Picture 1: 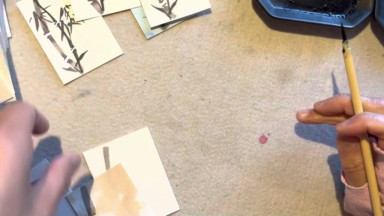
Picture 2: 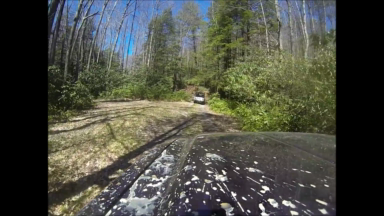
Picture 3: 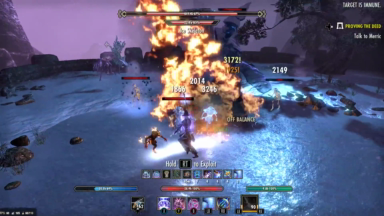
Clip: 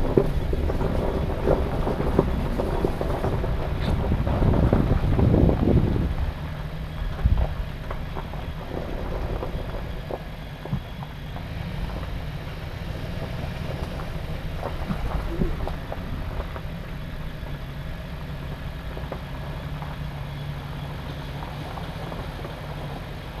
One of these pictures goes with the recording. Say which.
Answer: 2